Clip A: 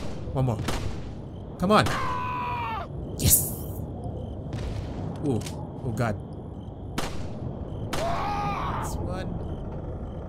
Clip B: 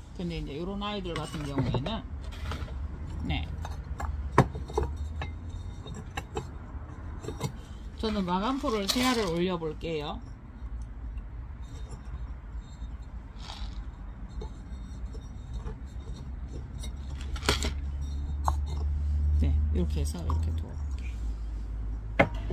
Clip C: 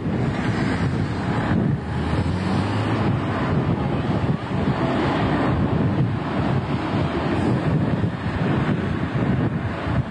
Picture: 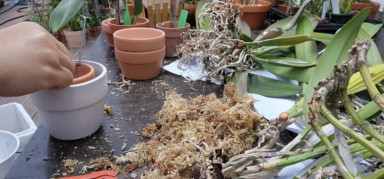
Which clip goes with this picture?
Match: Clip B